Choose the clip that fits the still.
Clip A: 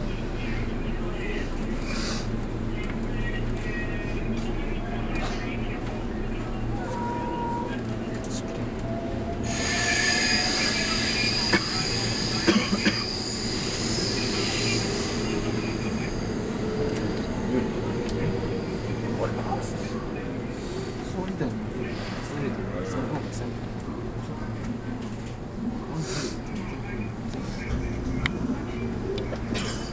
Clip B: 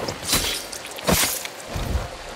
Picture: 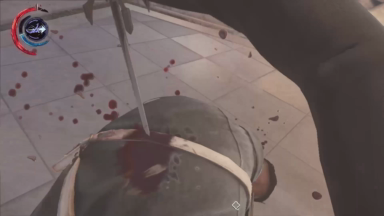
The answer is B